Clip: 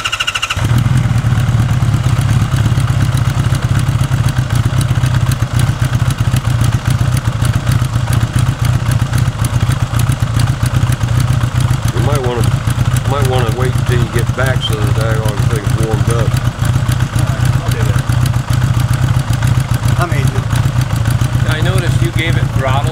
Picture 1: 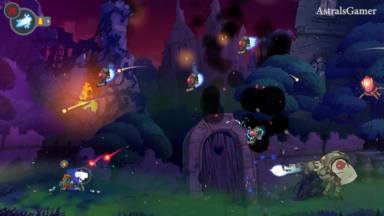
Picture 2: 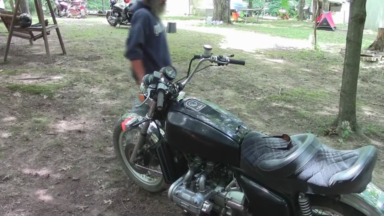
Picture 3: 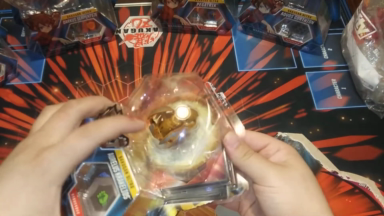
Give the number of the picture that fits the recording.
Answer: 2